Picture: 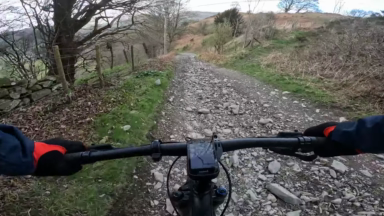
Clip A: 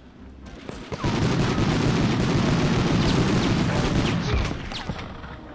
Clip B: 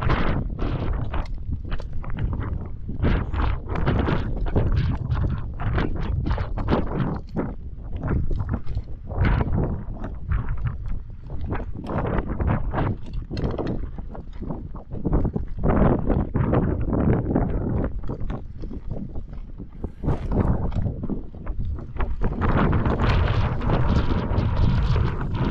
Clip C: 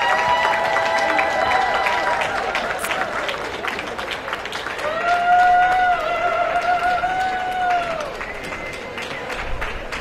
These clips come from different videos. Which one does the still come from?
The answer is B